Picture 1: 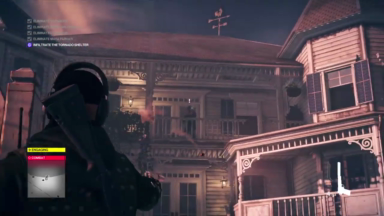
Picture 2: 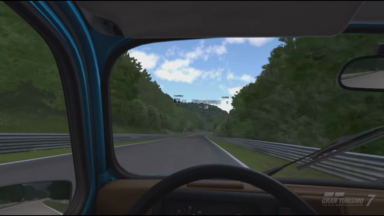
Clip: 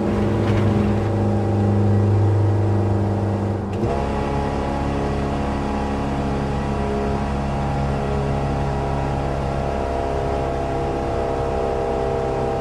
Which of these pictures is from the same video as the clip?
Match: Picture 2